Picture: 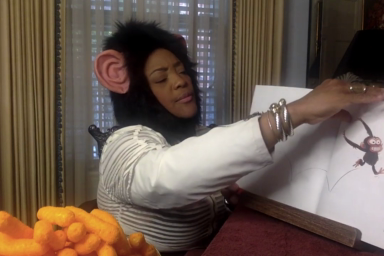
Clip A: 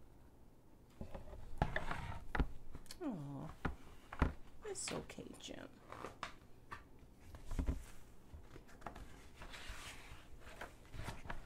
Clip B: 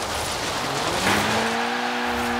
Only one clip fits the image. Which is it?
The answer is A